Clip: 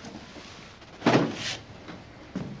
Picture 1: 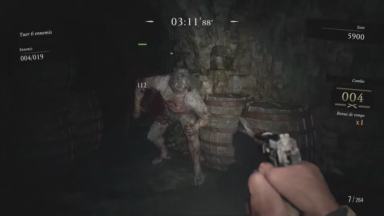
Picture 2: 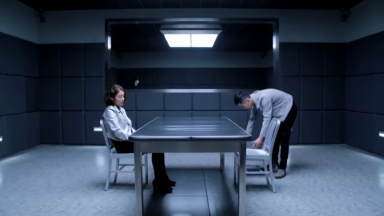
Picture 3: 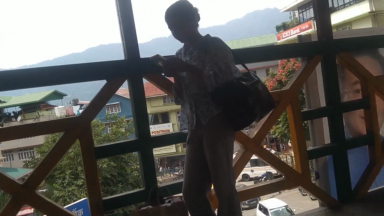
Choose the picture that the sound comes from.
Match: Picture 2